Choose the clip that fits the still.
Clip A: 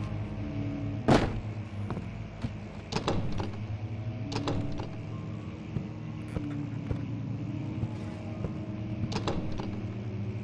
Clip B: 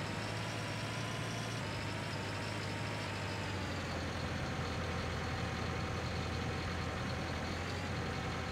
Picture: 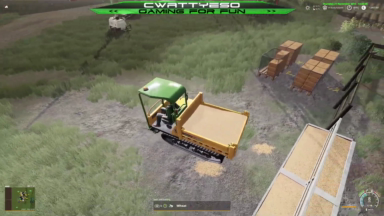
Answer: B